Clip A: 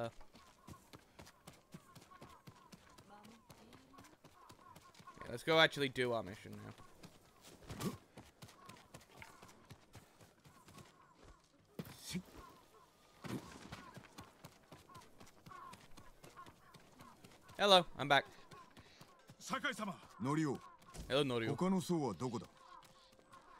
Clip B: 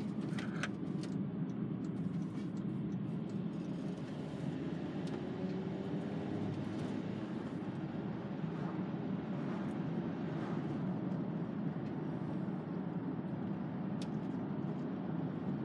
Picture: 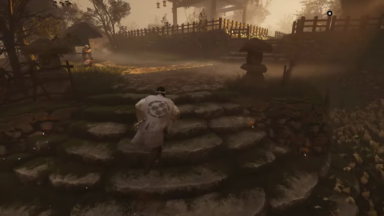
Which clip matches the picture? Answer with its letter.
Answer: A